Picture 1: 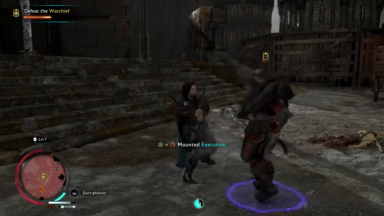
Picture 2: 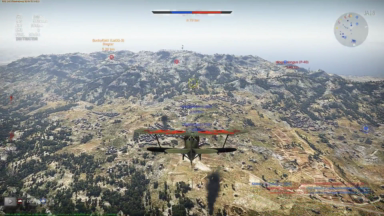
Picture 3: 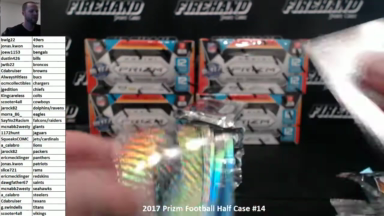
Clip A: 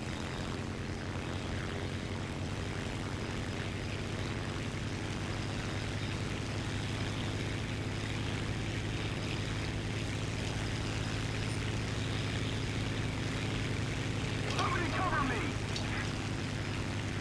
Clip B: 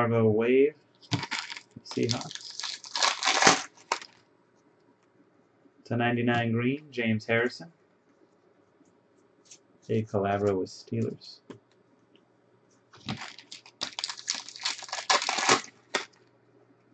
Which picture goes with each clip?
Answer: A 2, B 3